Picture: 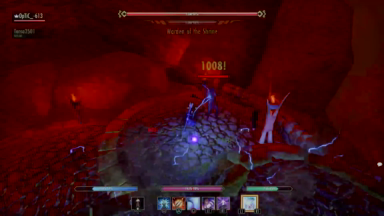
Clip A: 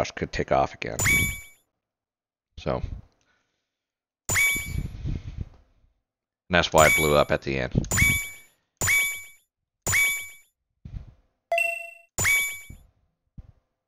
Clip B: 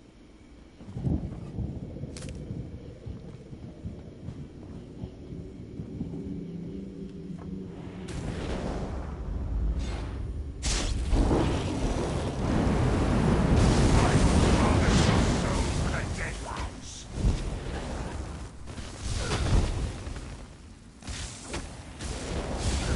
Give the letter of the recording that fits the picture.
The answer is B